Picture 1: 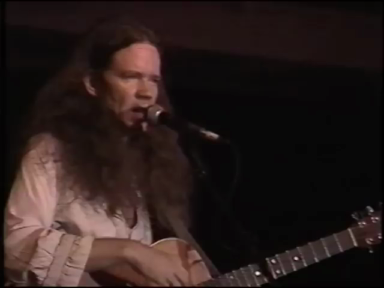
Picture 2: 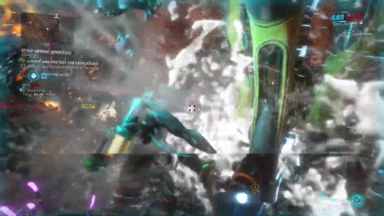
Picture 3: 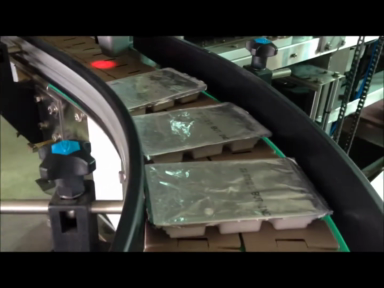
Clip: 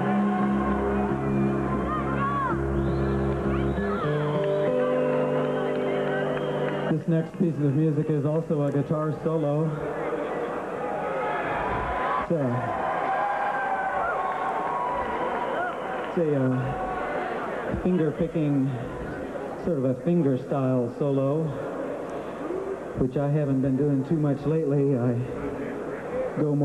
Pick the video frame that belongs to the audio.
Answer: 1